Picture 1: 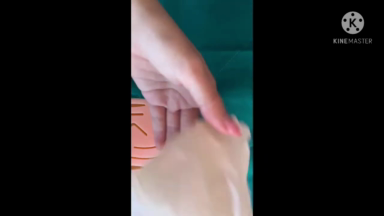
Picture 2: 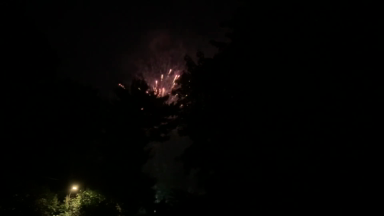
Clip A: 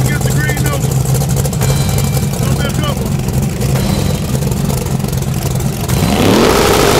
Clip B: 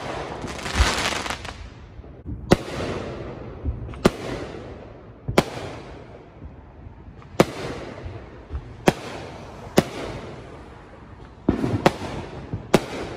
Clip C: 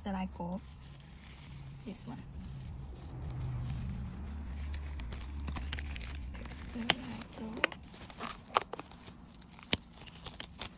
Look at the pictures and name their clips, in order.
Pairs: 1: C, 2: B